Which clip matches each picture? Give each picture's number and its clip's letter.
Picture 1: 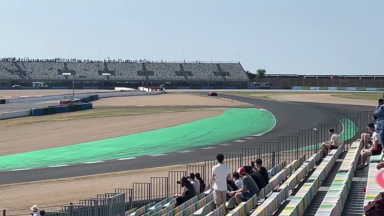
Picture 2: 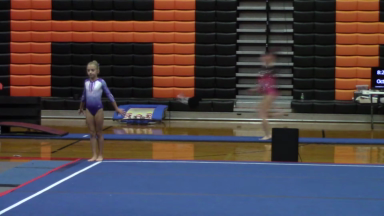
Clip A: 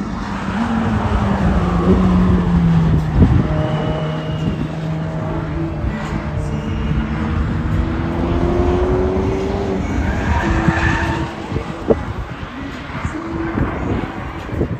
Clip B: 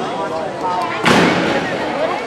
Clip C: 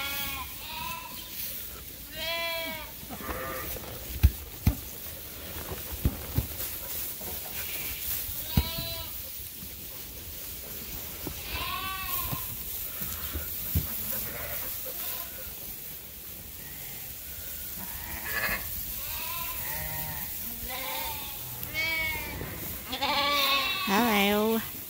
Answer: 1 A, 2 B